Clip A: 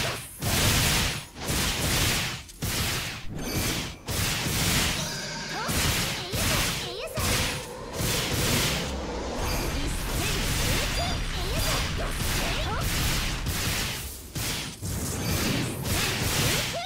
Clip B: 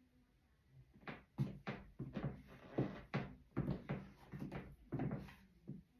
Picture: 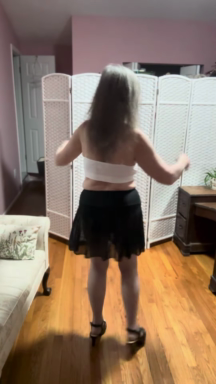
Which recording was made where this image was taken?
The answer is B